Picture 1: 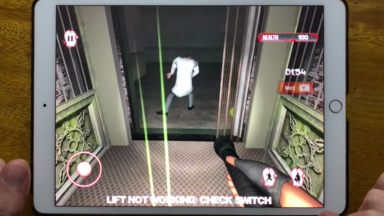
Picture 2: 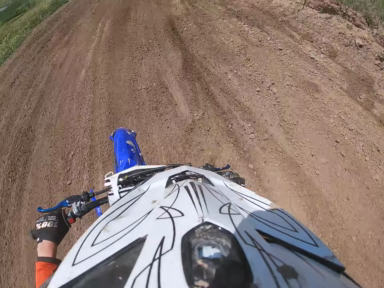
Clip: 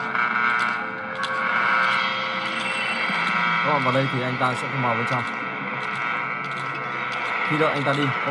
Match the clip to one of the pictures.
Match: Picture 1